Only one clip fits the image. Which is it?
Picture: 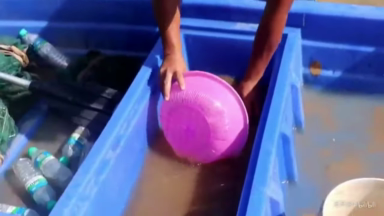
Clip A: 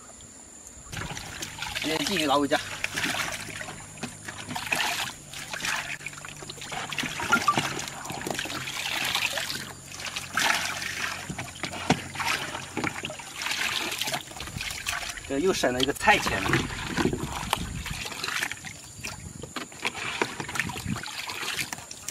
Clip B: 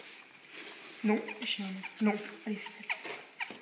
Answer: A